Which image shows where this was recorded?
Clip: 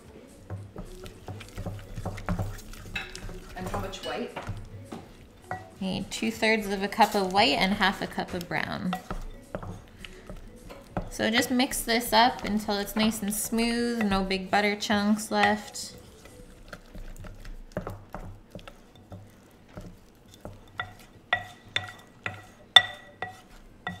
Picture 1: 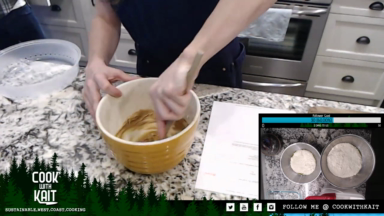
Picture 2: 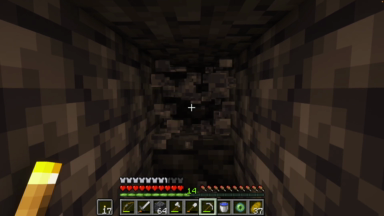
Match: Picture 1